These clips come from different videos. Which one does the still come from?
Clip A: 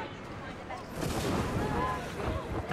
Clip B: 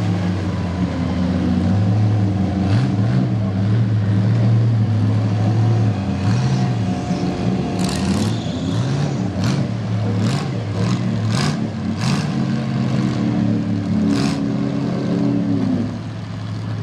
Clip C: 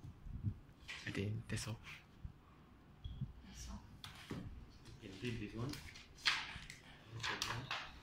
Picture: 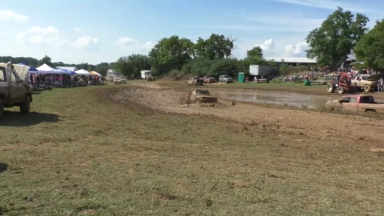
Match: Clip B